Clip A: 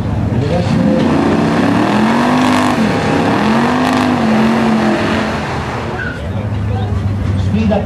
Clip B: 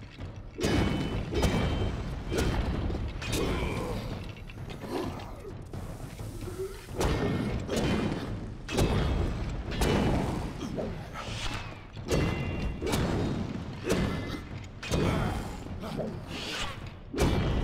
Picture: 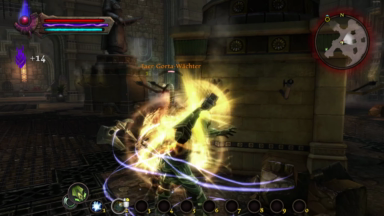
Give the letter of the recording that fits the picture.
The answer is B